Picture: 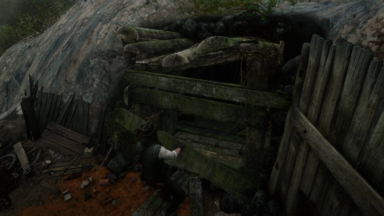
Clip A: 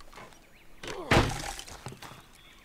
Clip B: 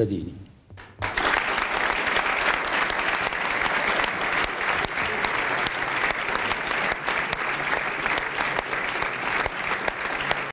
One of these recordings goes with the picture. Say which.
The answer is A